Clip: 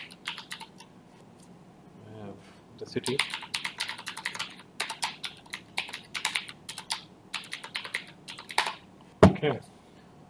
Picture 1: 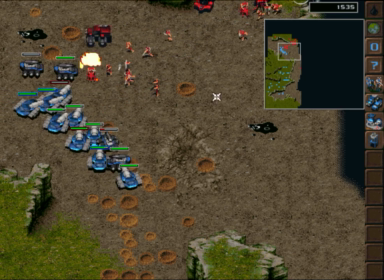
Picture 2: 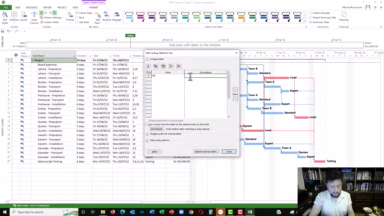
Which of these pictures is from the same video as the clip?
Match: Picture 2